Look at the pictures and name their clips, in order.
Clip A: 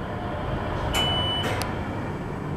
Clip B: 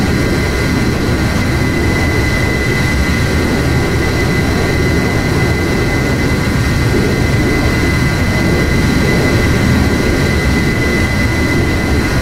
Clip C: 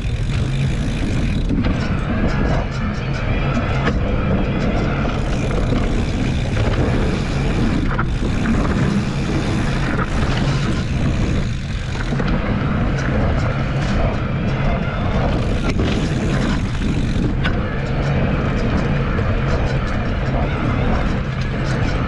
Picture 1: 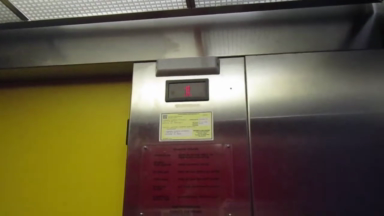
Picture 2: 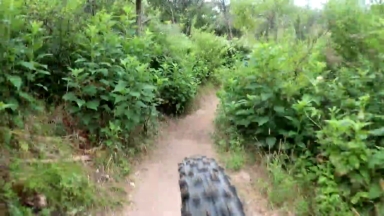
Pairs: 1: A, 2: C